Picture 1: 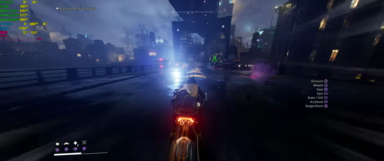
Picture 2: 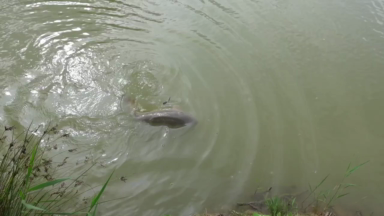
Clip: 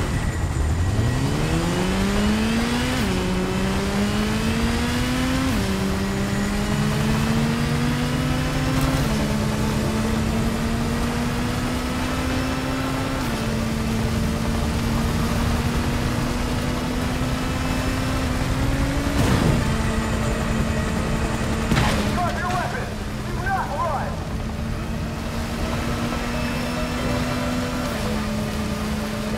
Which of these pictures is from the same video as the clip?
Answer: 1